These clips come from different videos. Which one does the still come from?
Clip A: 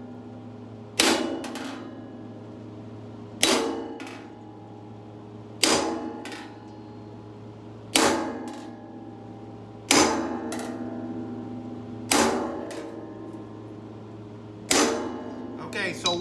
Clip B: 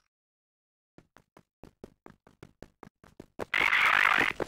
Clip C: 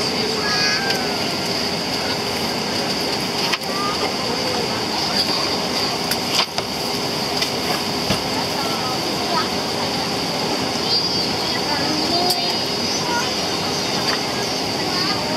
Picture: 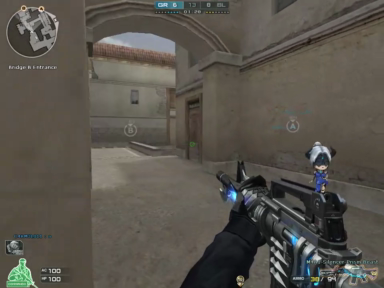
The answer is B